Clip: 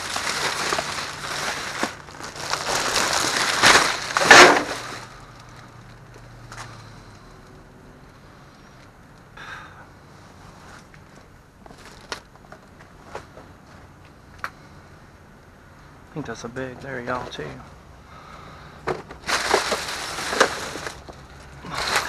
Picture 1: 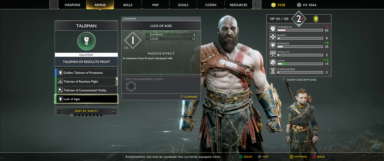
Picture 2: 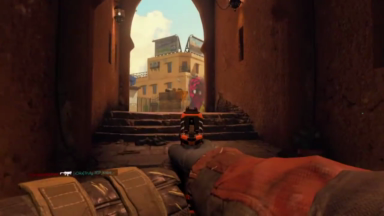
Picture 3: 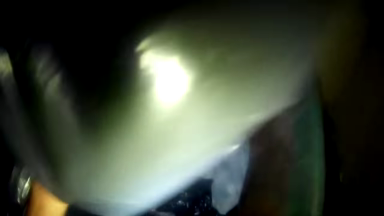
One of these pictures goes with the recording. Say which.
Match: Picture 3